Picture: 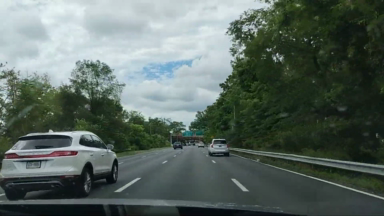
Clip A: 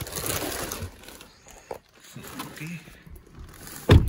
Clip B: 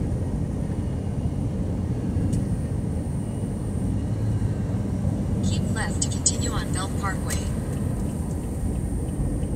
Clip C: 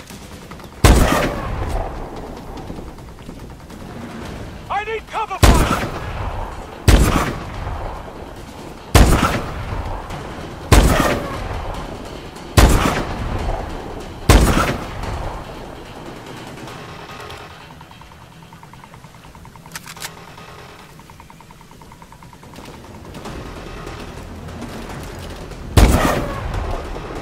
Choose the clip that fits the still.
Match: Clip B